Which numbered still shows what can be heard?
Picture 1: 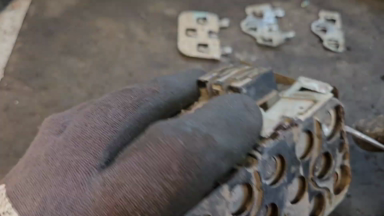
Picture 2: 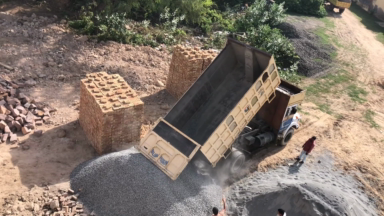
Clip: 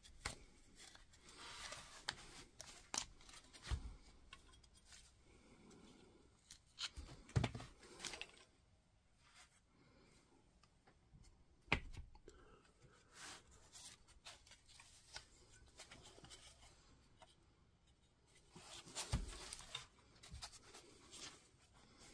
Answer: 1